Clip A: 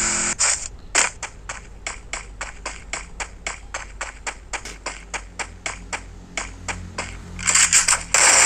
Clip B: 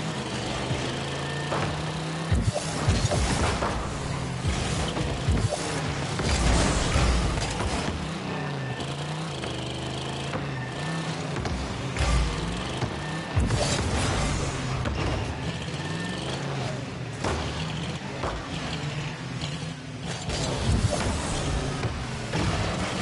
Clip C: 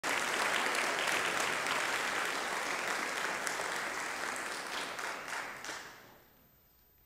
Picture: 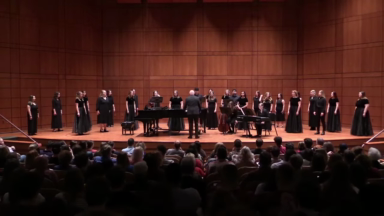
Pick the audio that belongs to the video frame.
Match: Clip C